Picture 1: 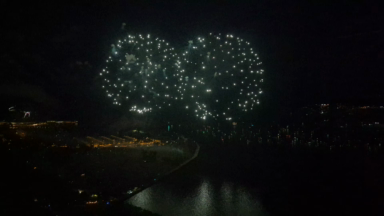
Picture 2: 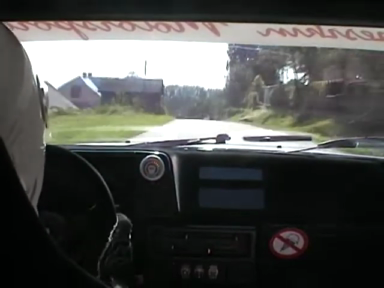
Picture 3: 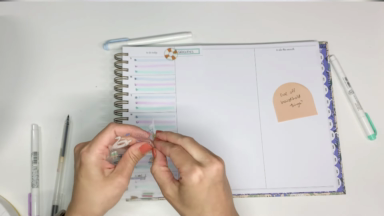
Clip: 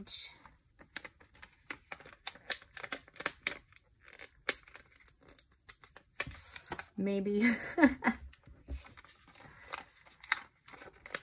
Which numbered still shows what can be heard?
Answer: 3